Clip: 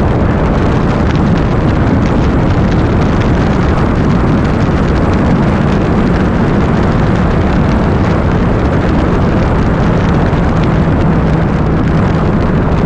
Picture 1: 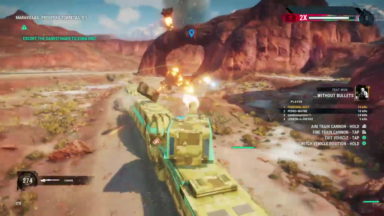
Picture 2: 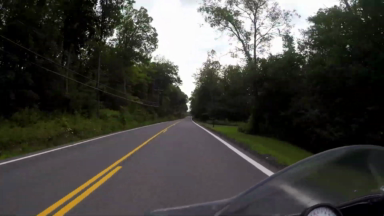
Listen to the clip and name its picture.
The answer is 2